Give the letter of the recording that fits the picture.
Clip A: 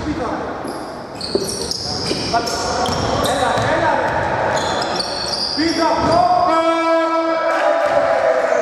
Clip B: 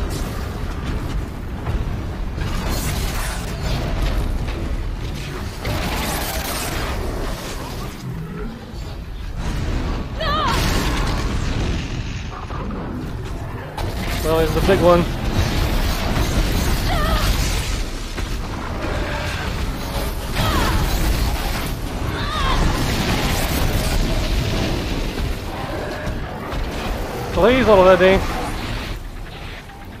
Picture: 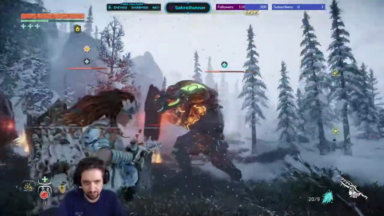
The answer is B